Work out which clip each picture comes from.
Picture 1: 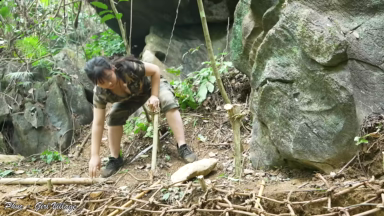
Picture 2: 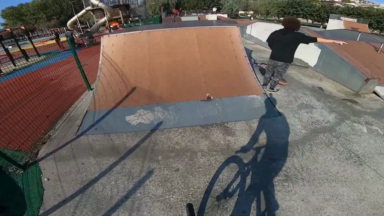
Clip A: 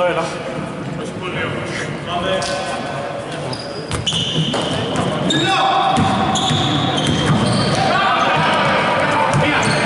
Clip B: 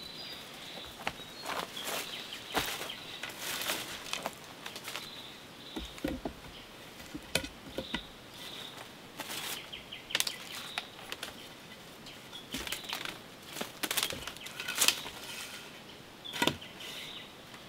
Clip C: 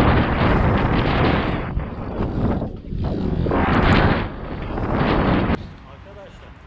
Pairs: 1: B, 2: C